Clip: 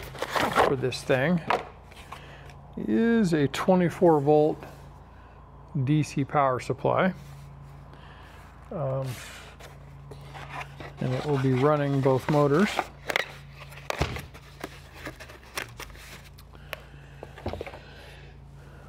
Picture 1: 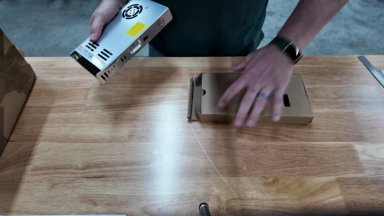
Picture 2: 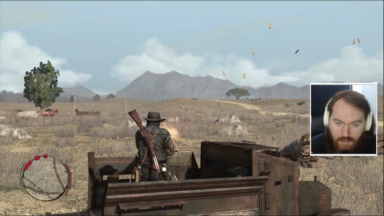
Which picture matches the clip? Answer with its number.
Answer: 1